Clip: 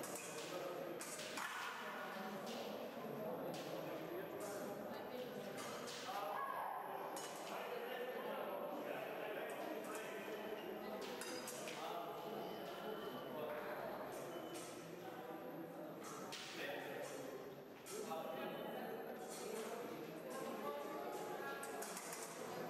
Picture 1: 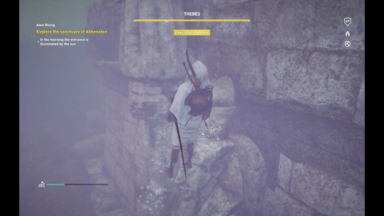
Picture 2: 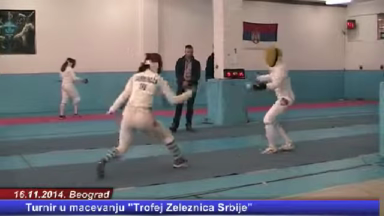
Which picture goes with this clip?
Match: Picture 2